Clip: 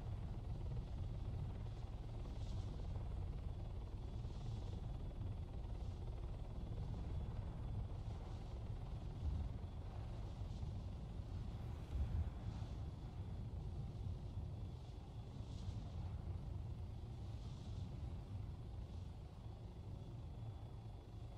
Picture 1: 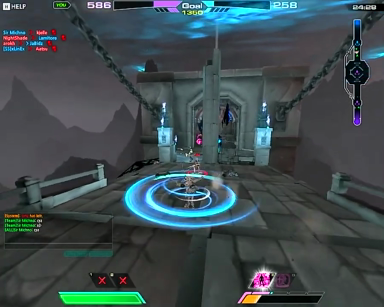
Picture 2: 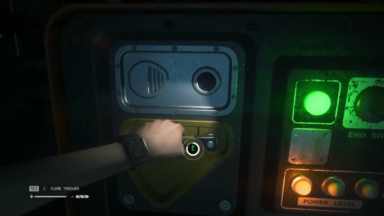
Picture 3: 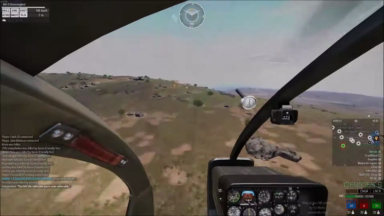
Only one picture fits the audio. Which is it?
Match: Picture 3